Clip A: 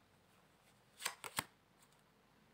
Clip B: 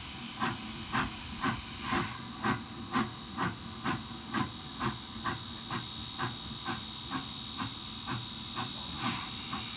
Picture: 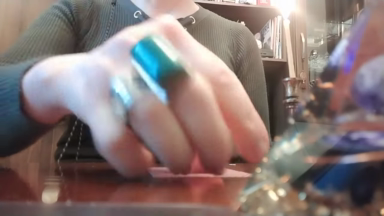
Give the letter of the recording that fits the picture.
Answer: A